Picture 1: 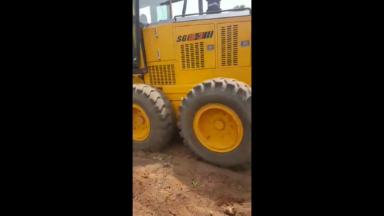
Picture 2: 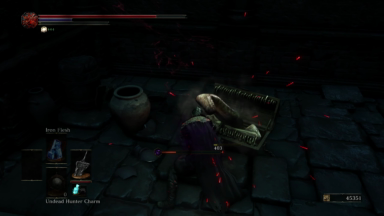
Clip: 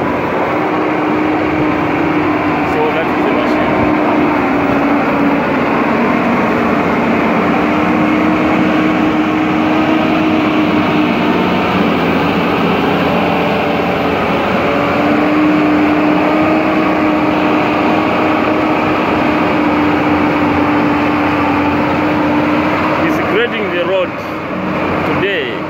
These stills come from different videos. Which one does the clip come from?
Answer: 1